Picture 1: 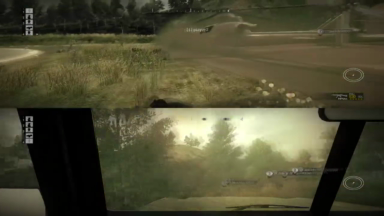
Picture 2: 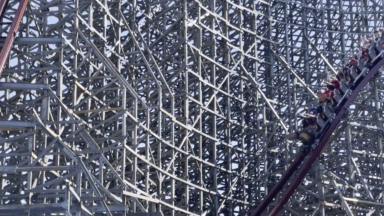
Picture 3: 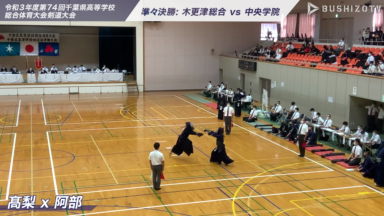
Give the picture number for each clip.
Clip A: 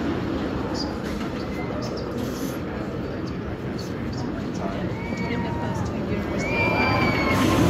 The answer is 2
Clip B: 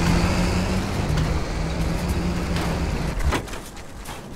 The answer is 1